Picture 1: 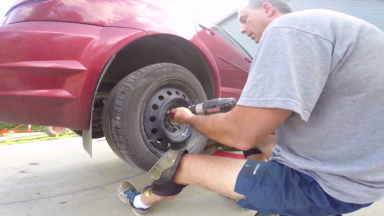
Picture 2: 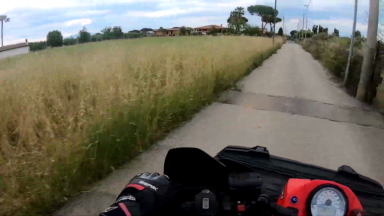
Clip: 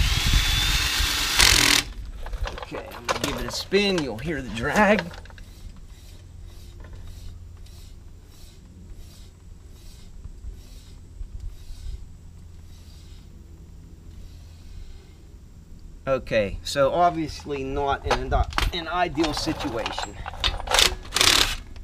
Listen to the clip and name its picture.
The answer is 1